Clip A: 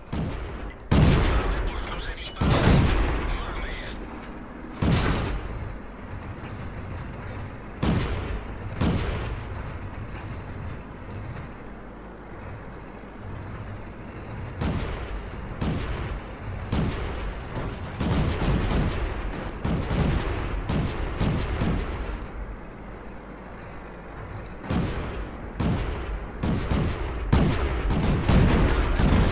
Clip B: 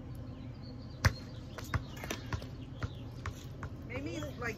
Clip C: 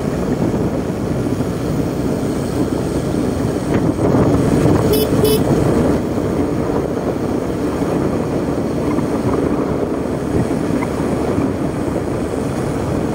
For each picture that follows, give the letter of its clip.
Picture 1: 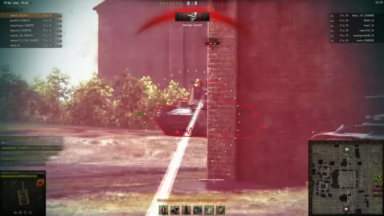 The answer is A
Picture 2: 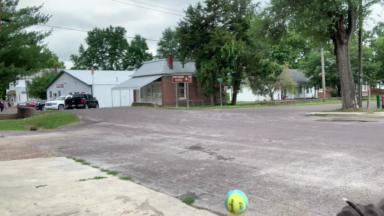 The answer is B